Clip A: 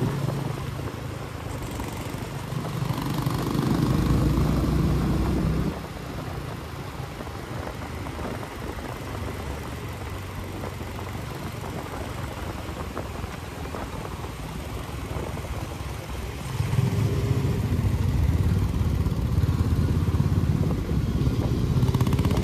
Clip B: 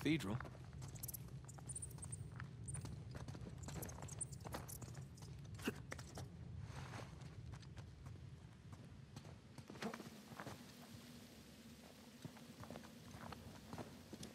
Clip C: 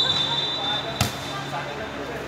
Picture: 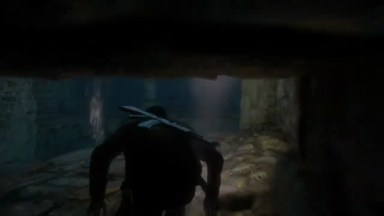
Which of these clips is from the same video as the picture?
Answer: B